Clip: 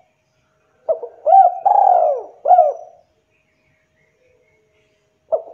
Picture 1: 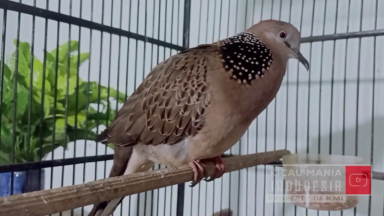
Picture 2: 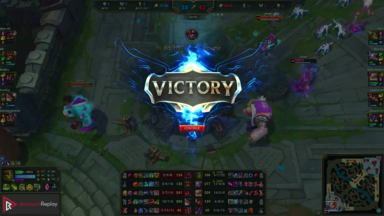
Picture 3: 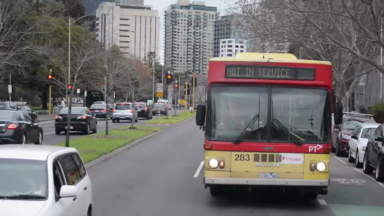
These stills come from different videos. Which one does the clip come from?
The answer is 1